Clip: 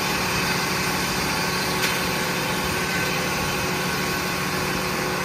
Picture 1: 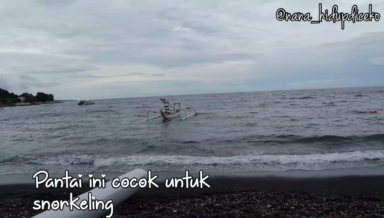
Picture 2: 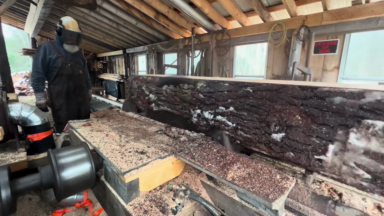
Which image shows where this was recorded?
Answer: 2